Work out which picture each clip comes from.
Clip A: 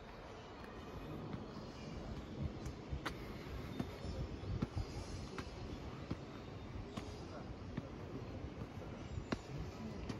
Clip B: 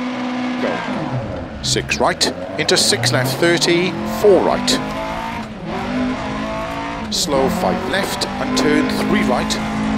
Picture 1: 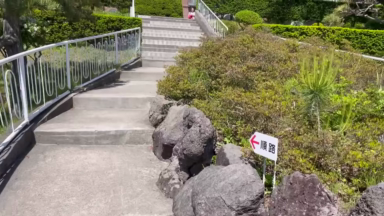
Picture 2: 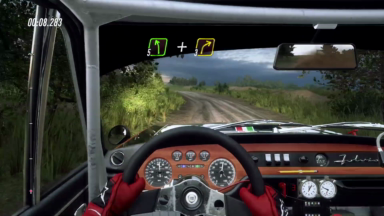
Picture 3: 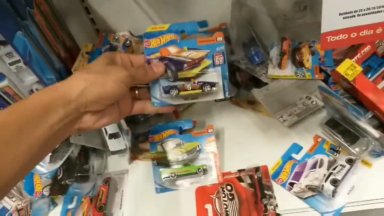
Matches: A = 1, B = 2